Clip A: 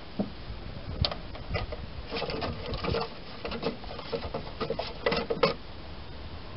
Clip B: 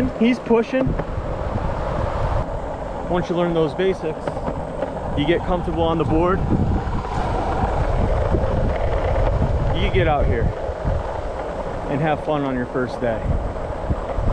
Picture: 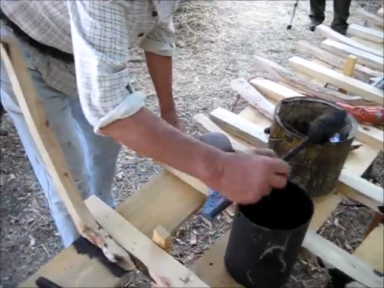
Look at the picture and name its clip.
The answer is A